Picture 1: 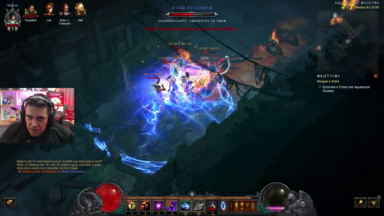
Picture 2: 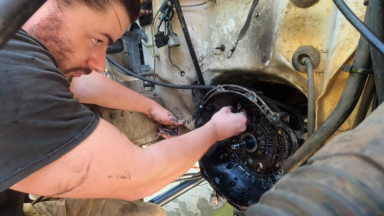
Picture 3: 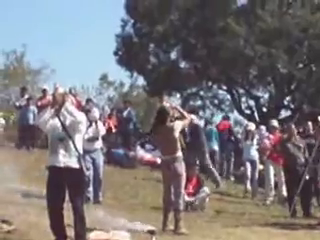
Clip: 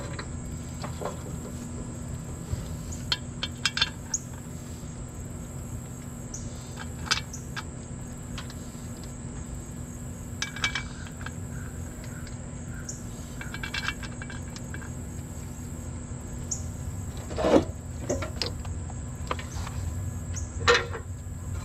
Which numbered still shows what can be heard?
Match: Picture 2